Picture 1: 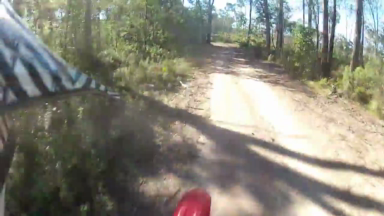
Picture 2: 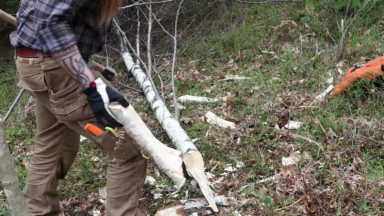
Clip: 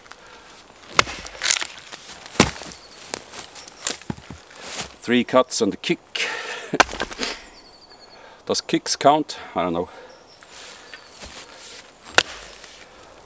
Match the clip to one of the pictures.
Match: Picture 2